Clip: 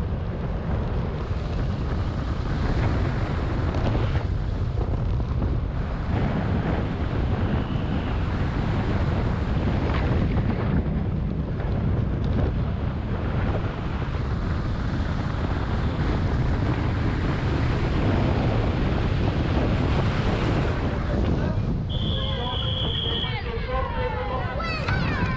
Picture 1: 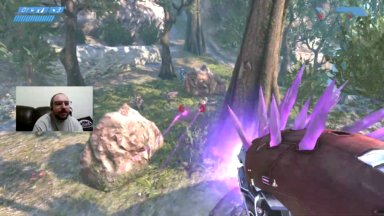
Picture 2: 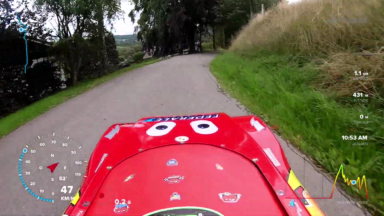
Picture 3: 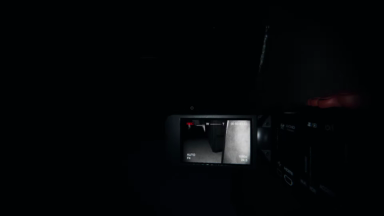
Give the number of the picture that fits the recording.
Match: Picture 2